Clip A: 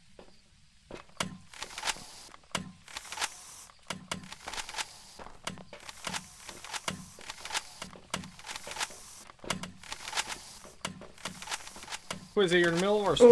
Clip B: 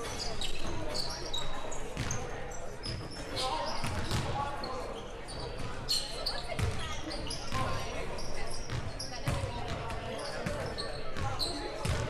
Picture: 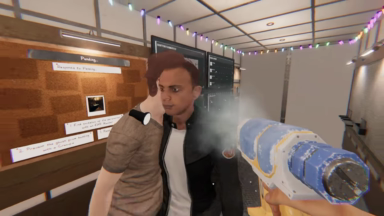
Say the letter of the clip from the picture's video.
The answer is A